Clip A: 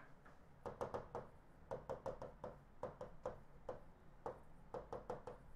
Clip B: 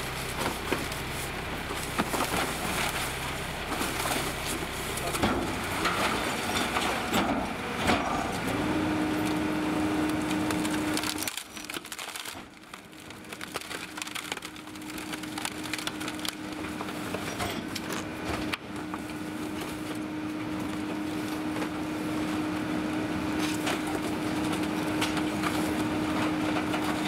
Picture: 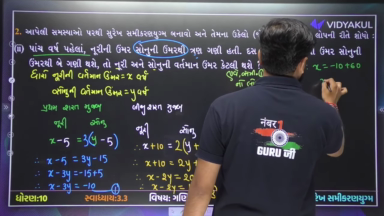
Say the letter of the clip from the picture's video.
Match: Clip A